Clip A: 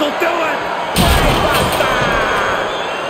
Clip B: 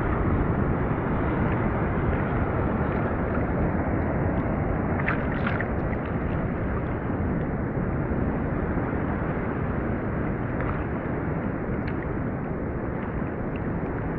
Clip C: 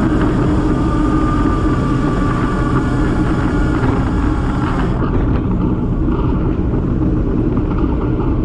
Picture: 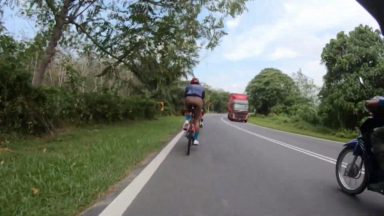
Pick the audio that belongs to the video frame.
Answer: C